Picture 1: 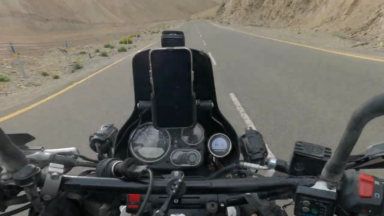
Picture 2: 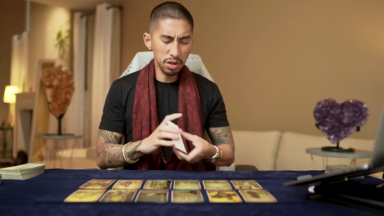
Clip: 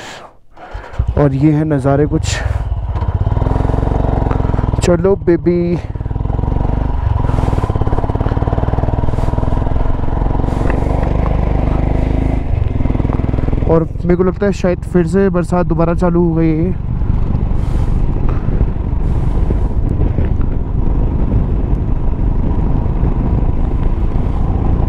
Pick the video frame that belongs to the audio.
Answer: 1